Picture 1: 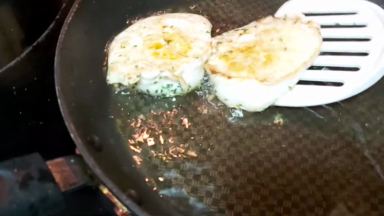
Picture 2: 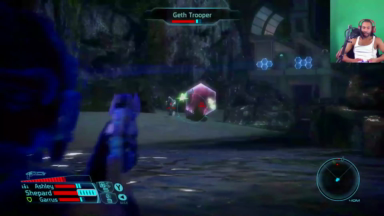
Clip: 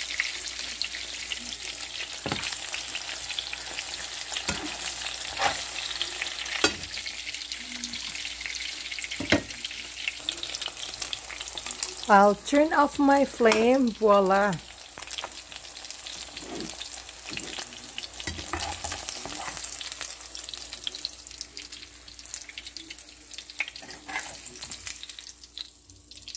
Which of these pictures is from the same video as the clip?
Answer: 1